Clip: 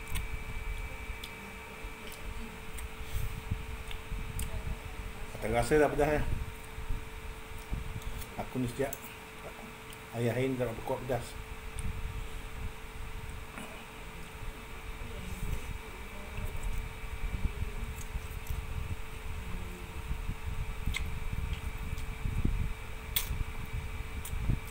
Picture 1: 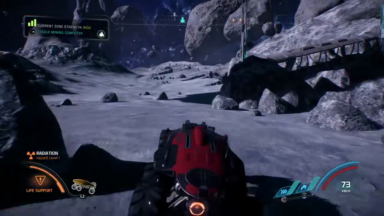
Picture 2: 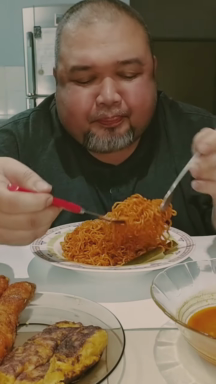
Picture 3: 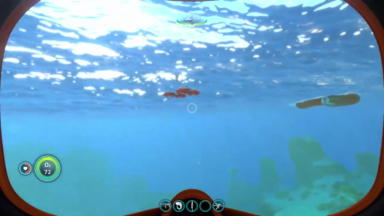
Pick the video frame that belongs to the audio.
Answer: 2